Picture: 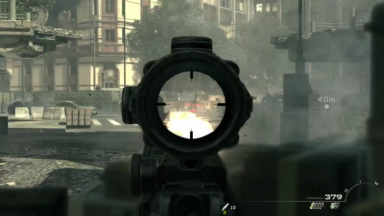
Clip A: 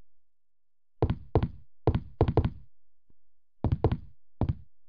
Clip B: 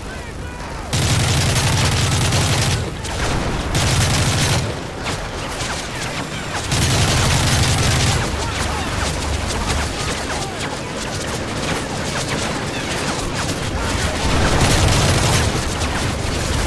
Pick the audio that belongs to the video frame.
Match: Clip B